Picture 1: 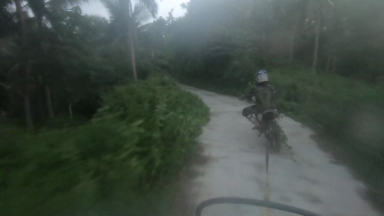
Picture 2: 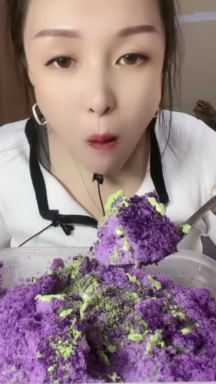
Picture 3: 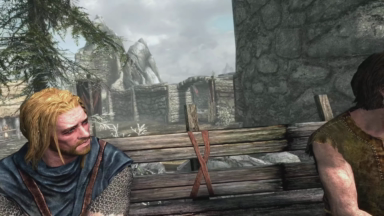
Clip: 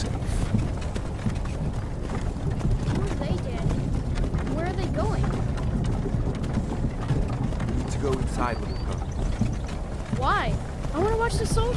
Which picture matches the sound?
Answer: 3